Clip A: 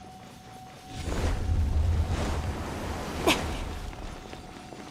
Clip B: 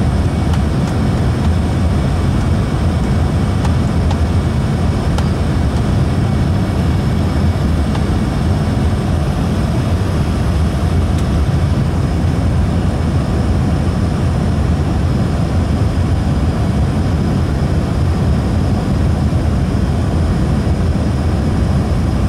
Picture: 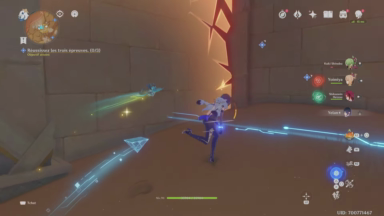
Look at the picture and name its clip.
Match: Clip A